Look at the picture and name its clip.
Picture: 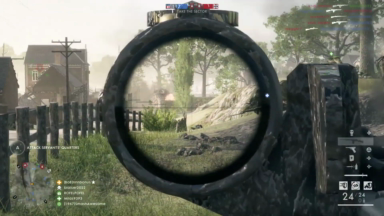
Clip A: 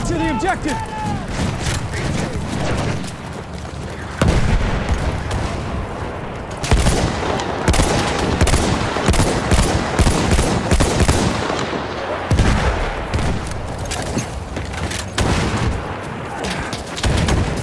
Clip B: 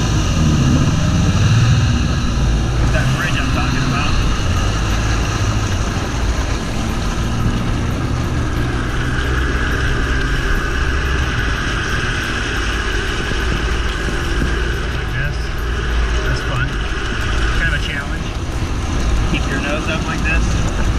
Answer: A